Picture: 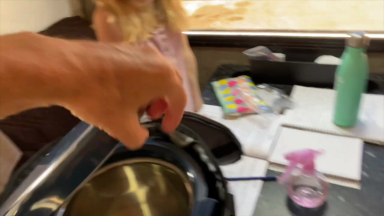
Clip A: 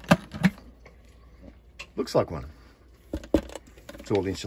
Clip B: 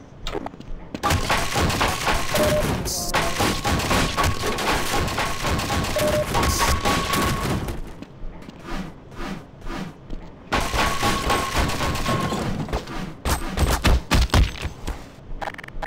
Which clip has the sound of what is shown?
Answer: A